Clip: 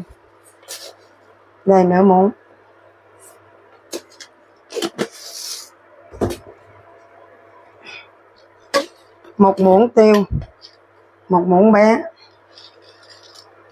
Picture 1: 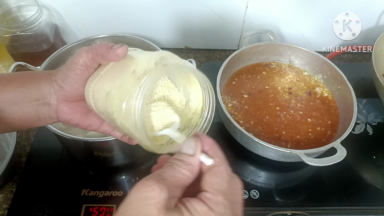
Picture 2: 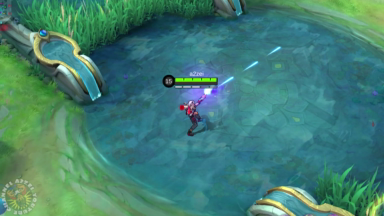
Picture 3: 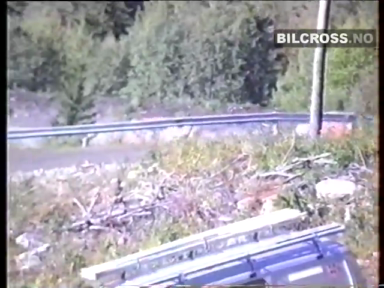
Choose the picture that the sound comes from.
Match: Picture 1